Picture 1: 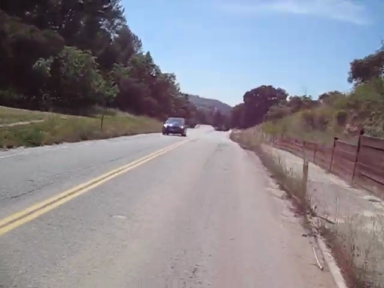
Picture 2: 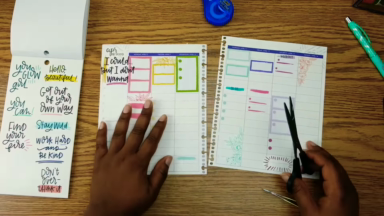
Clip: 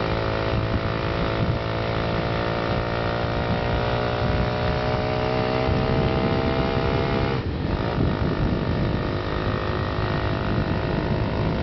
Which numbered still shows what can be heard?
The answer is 1